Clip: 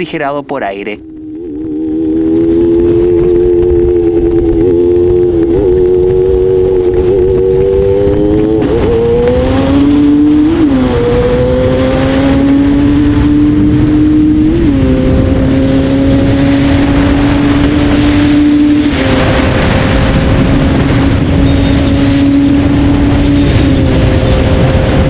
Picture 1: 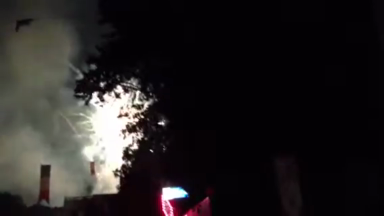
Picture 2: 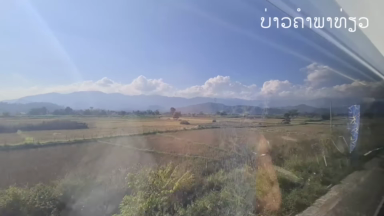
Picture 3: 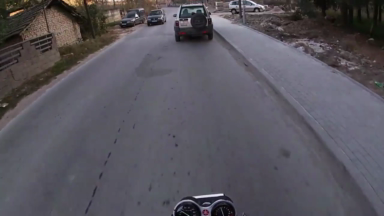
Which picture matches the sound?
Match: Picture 3